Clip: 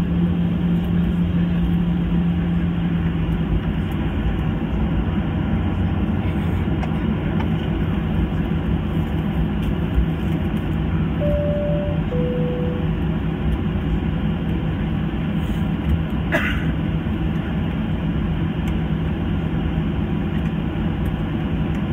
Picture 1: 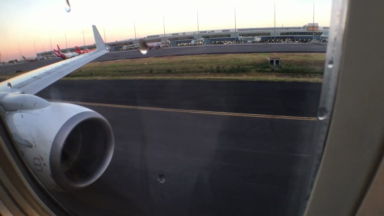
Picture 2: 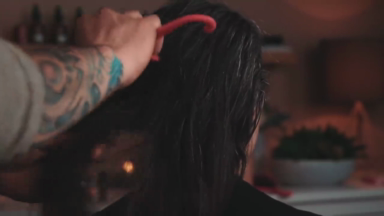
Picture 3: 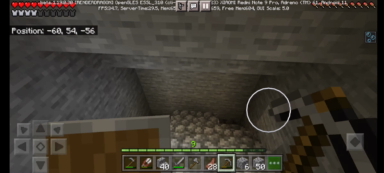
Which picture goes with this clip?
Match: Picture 1